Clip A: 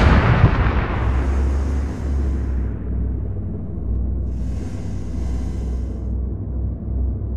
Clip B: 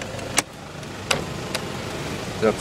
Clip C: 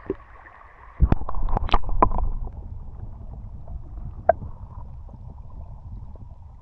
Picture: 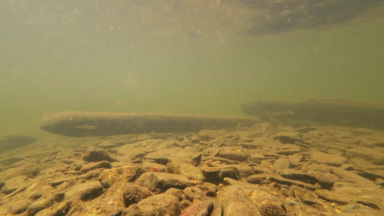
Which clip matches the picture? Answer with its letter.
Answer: C